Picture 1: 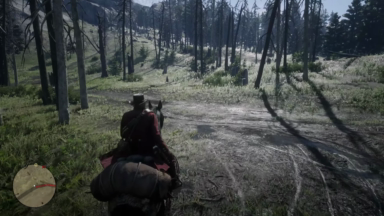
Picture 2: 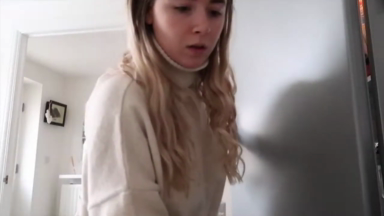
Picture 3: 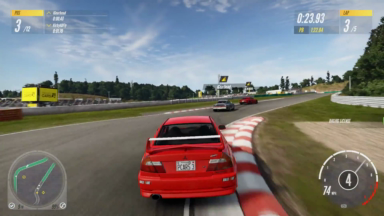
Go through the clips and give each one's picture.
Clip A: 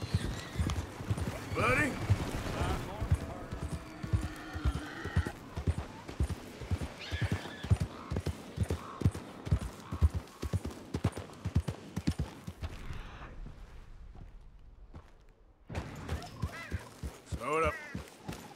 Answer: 1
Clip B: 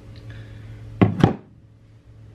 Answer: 2